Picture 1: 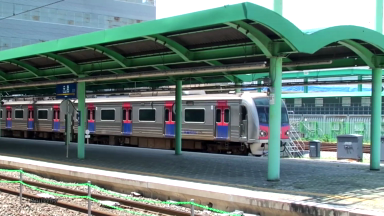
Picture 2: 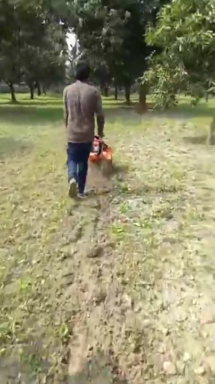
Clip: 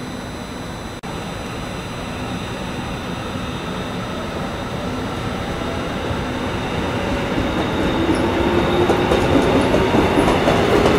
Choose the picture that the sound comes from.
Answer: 1